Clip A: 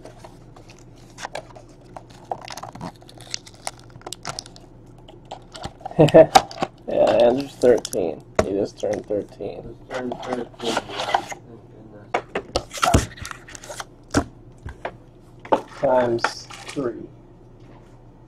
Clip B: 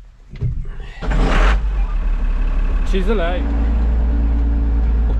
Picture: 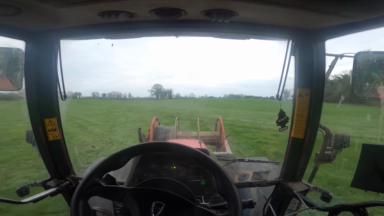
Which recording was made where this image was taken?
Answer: B